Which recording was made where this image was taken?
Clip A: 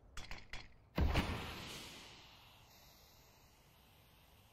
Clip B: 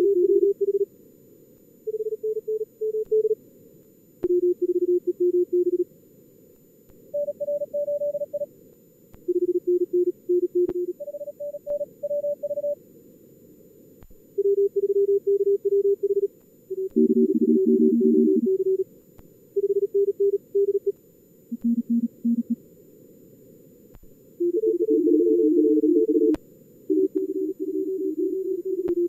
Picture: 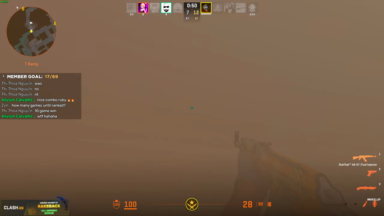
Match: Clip A